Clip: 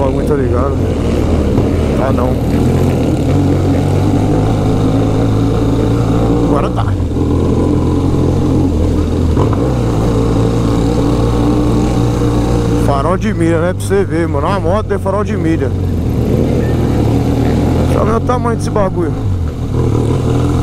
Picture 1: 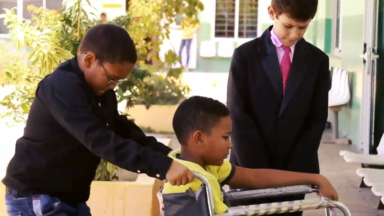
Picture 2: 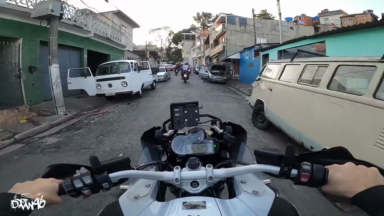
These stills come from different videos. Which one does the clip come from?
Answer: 2